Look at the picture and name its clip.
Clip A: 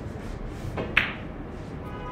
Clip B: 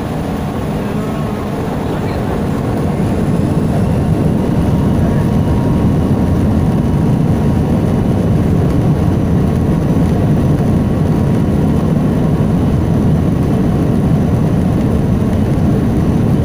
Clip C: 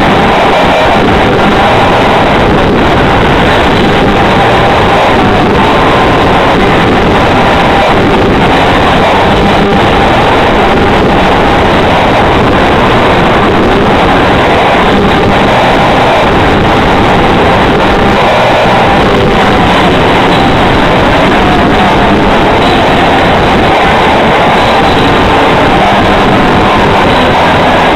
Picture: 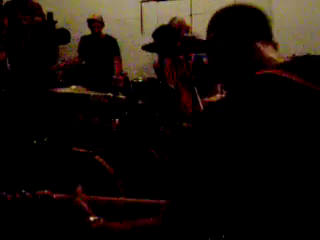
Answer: C